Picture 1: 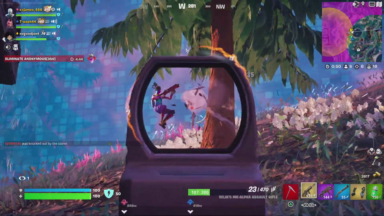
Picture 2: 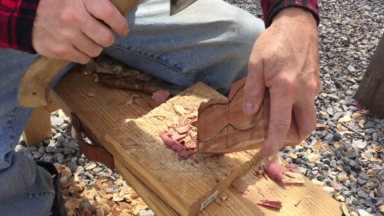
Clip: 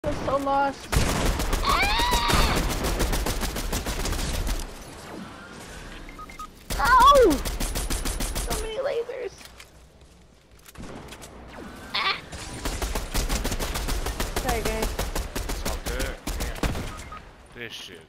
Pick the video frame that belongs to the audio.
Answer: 1